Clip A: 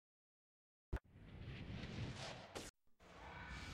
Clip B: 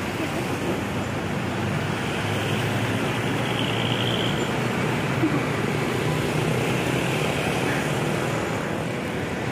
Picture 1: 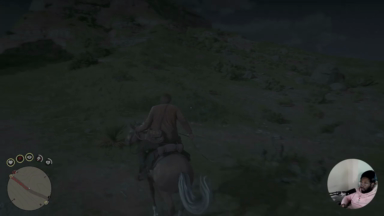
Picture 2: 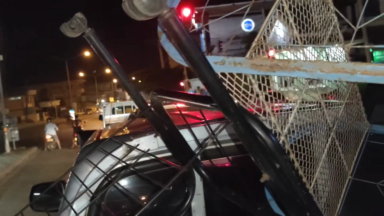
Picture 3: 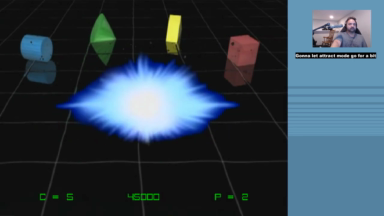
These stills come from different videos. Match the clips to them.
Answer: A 3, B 2